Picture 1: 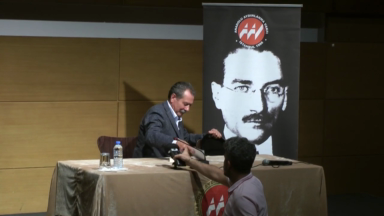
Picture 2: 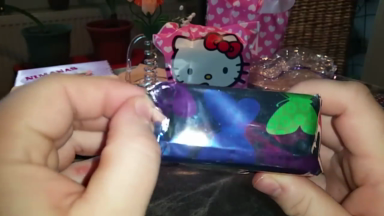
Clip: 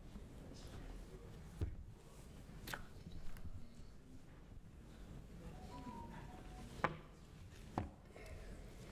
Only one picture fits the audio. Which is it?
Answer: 1